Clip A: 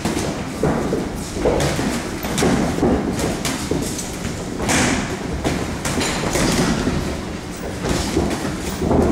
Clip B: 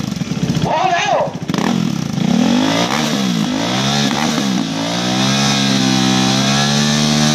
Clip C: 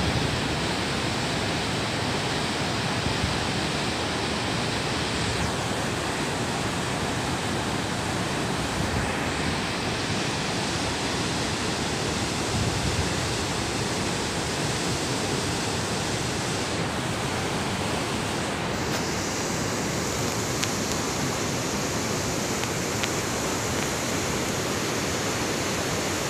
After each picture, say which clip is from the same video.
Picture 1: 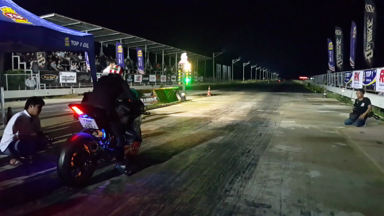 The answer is B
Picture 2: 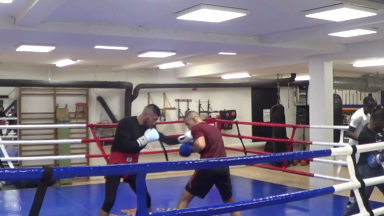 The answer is A